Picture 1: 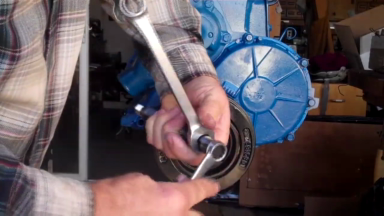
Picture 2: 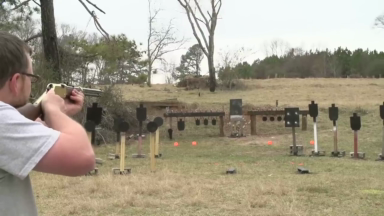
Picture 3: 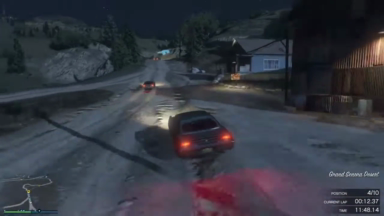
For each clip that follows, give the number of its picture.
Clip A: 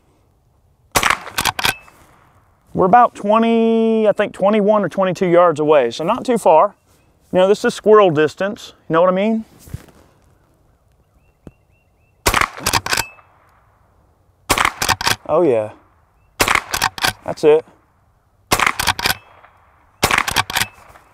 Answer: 2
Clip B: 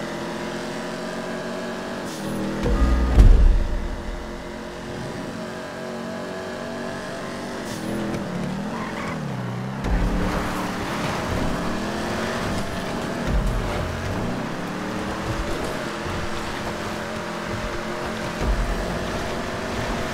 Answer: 3